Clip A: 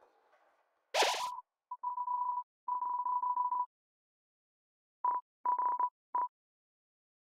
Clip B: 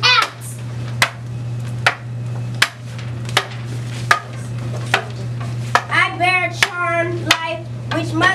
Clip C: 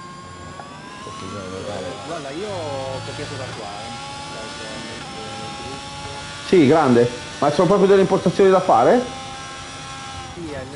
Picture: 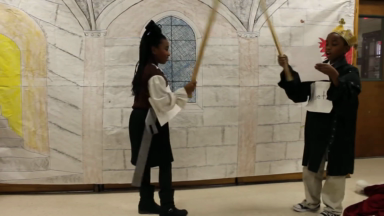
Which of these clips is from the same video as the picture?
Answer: B